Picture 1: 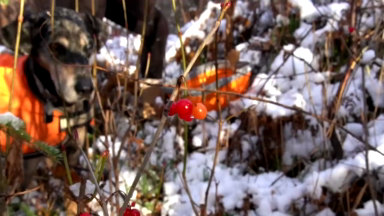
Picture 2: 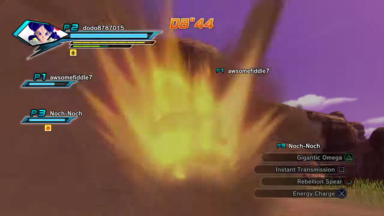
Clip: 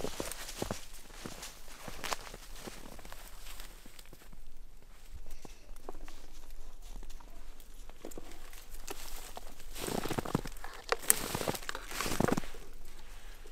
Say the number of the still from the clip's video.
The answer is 1